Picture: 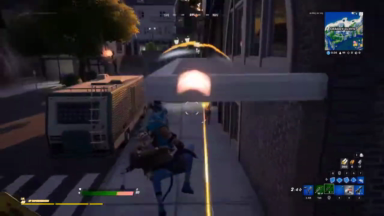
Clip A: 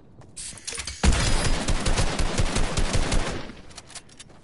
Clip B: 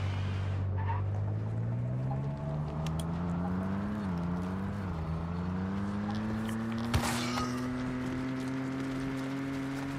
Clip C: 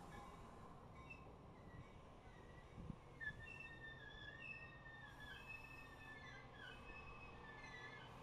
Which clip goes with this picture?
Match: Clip A